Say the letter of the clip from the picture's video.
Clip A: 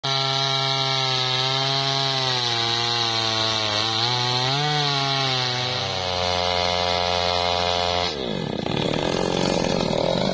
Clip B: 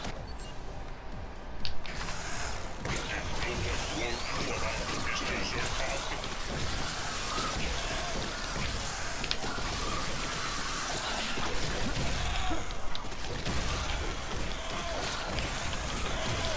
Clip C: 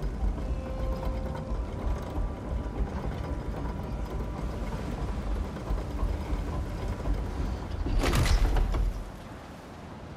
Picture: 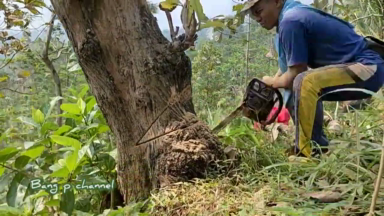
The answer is A